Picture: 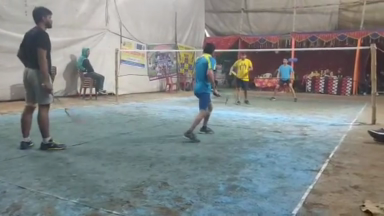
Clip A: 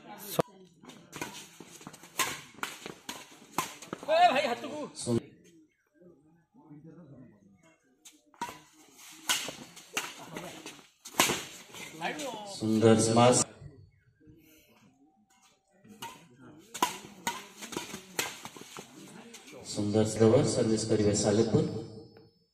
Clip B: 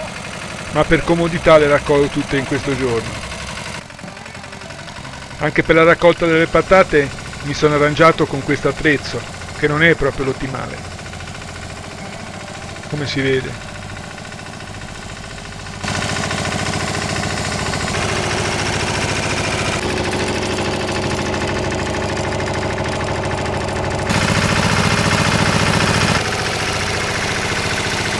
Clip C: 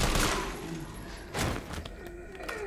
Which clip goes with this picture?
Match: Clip A